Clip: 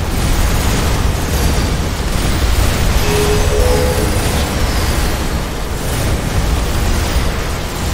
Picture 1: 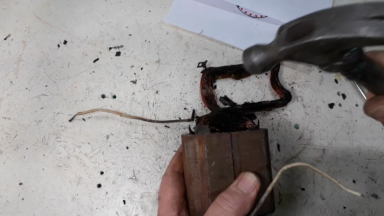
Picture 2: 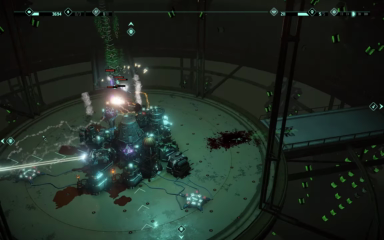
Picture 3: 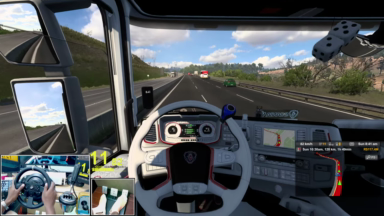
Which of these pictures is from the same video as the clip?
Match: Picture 2